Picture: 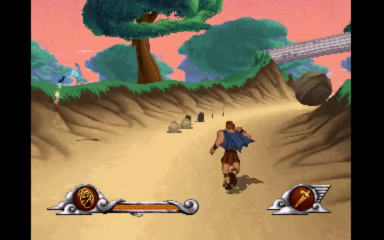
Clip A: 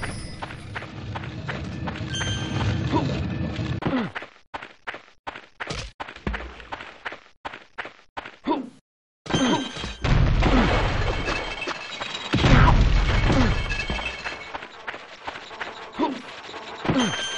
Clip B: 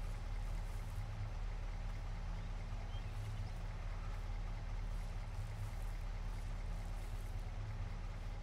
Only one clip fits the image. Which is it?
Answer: A